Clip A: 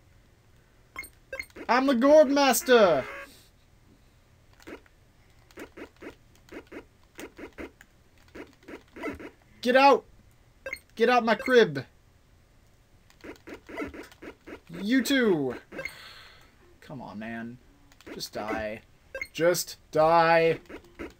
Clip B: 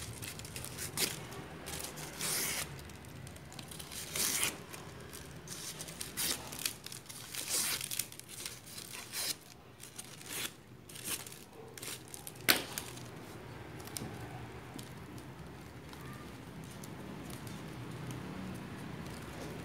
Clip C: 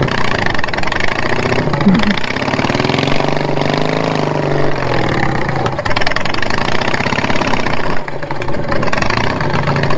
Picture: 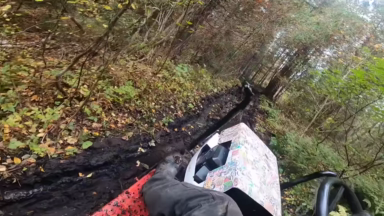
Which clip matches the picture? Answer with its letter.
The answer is C